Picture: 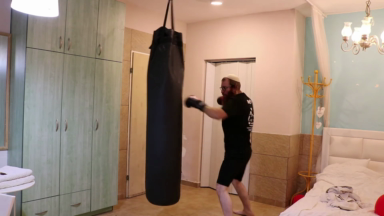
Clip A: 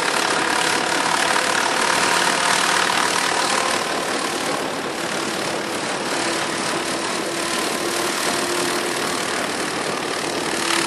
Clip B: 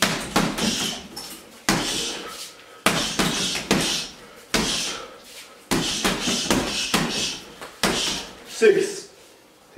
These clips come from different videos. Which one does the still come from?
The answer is B